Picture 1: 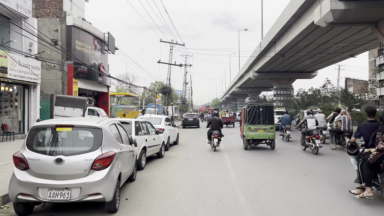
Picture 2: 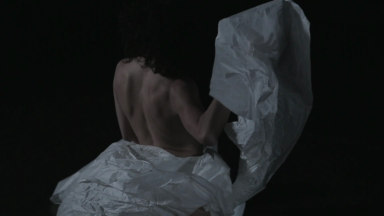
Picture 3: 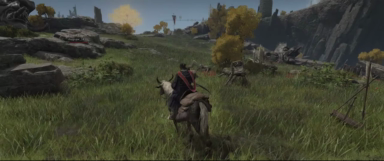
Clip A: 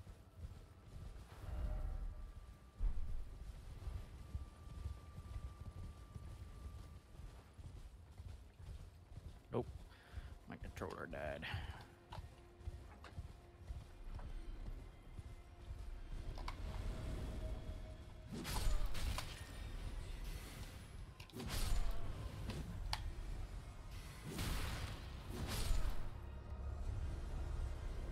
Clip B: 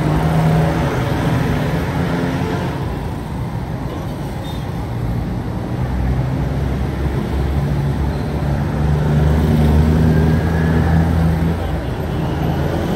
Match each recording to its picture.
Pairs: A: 3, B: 1